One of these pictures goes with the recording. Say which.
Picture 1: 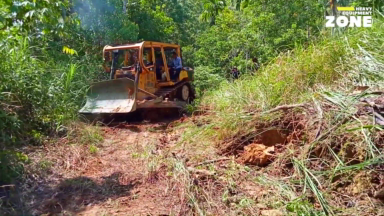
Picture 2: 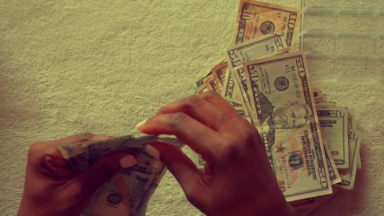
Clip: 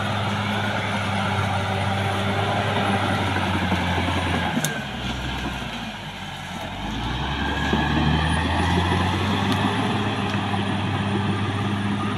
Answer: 1